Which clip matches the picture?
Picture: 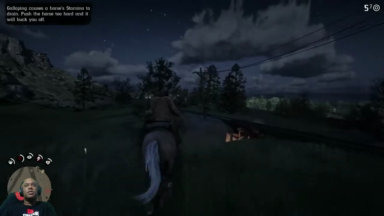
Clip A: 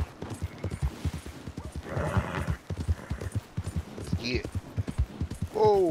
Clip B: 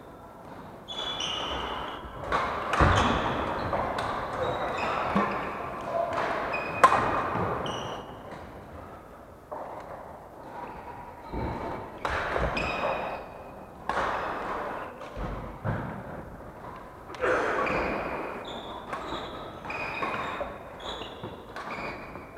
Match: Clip A